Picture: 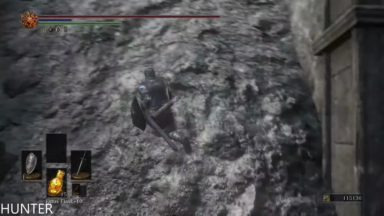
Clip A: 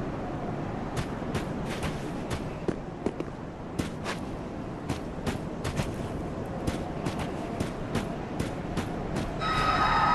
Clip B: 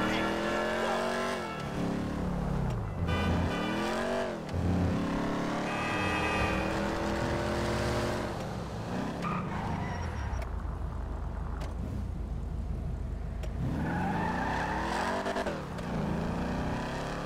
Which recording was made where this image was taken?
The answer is A